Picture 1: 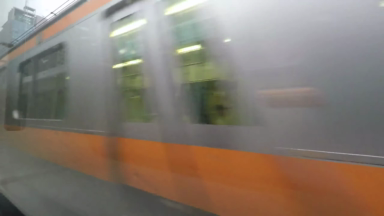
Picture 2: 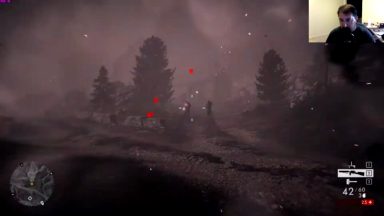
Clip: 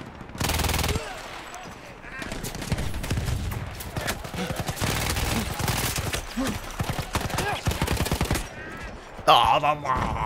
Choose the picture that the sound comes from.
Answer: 2